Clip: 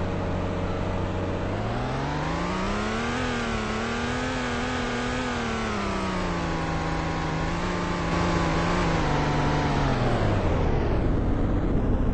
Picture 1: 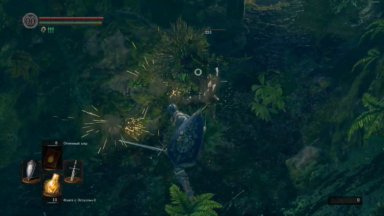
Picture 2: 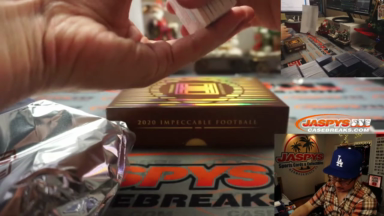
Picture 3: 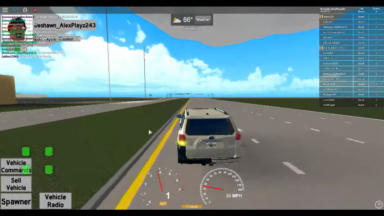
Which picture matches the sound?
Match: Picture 3